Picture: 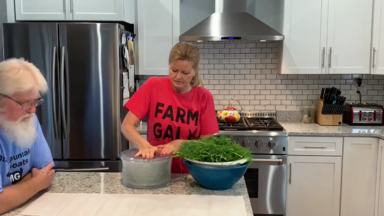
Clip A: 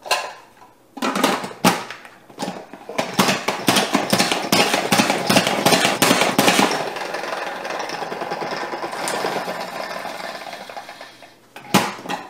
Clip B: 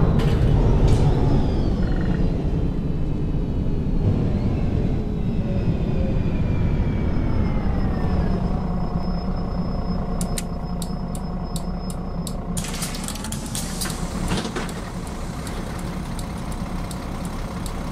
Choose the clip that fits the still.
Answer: A